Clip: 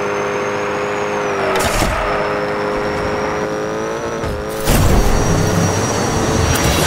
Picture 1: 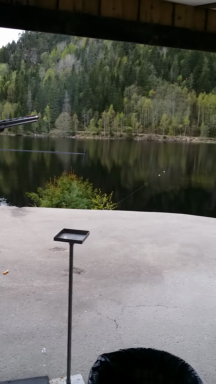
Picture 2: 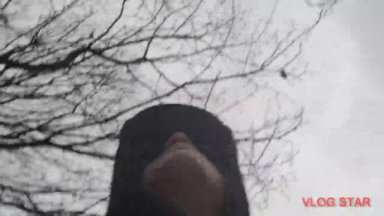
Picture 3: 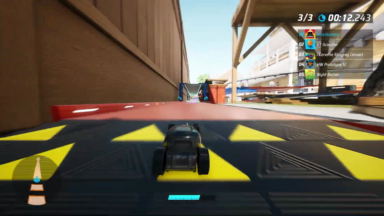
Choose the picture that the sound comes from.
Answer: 3